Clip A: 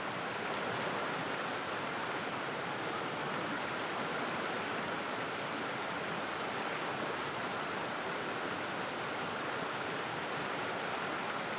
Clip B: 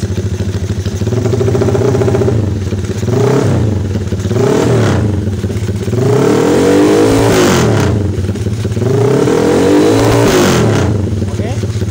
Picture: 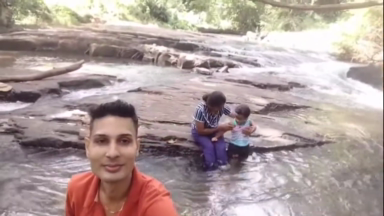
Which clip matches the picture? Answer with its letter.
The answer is A